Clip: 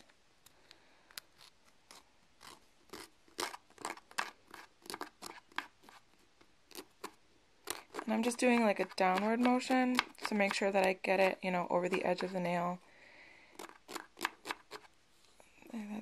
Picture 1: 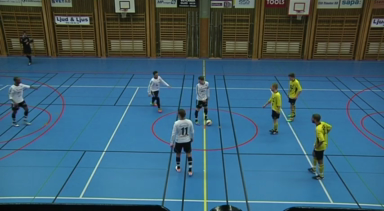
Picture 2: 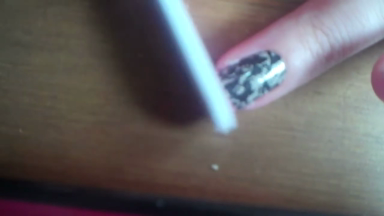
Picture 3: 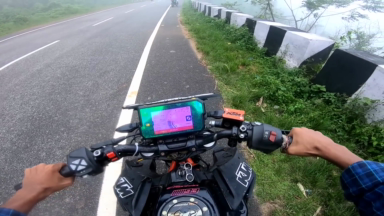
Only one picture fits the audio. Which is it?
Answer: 2